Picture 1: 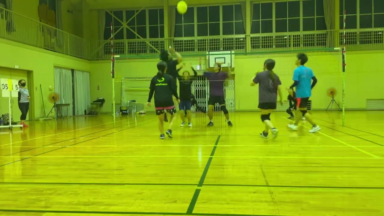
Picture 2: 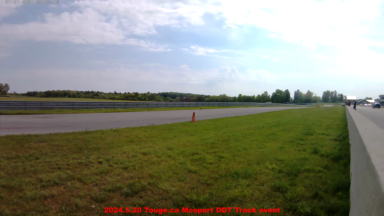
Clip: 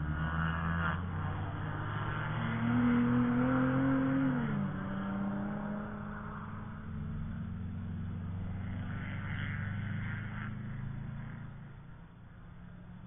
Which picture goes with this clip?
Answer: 2